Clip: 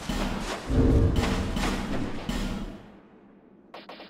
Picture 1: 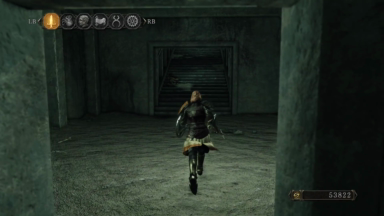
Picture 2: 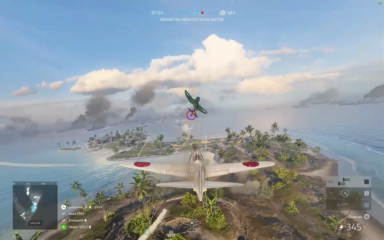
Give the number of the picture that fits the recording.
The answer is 1